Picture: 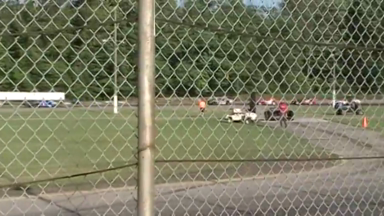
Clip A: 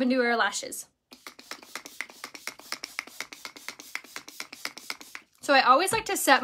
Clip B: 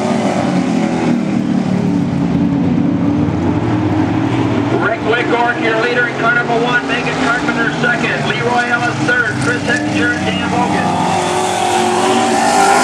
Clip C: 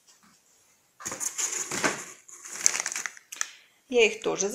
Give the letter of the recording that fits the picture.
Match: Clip B